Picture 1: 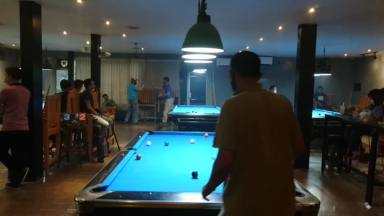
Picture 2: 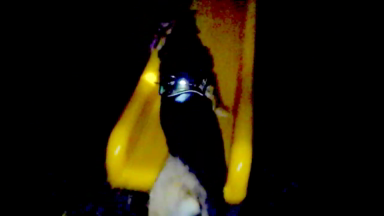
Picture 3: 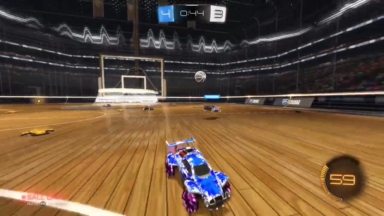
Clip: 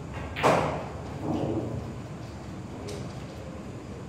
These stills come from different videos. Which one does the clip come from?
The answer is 1